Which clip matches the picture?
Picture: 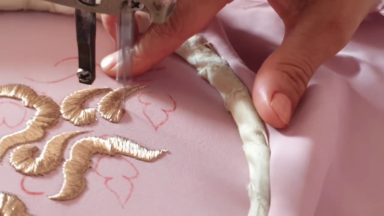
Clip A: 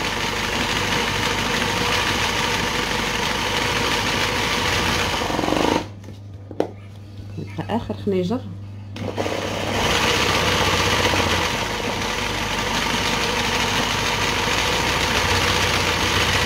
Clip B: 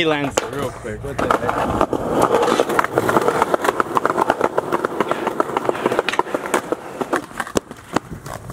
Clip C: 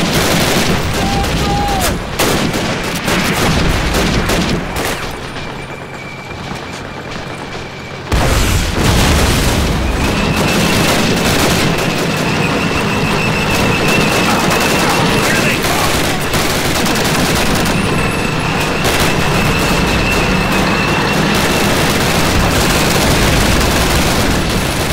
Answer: A